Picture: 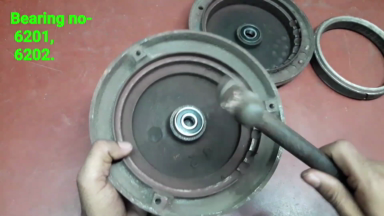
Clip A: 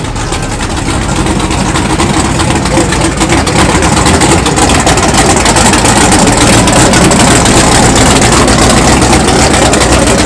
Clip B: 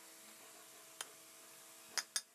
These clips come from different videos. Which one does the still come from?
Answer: B